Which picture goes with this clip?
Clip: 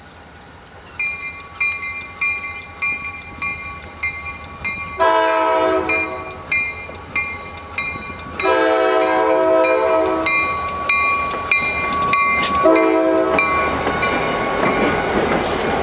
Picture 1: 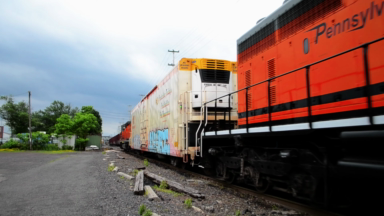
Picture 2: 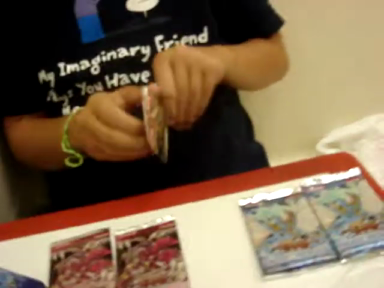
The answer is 1